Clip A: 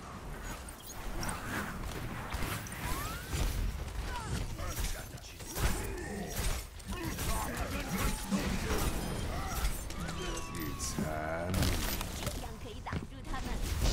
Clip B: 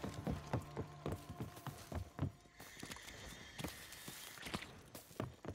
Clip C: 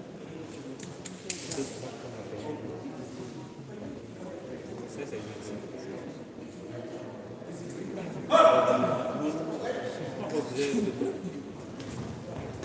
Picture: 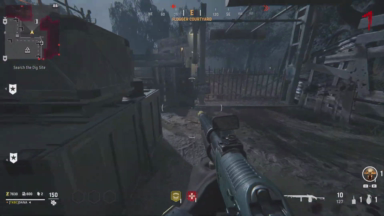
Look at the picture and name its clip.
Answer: B